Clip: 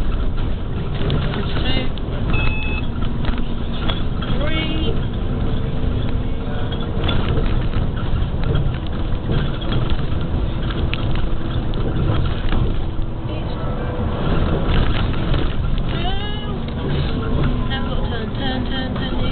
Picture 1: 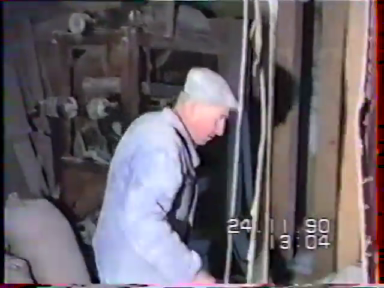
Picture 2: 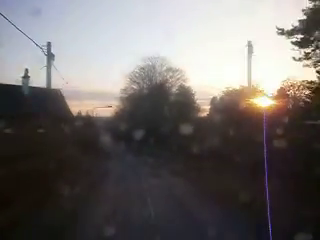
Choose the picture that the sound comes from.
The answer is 2